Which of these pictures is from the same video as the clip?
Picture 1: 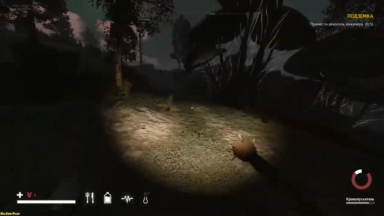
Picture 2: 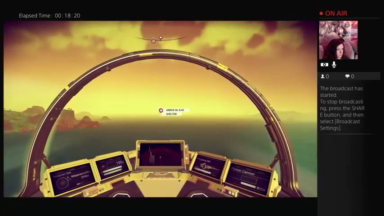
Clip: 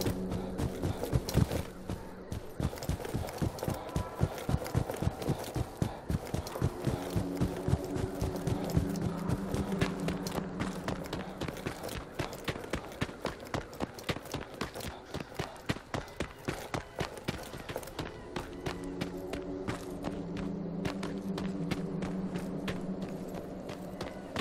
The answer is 1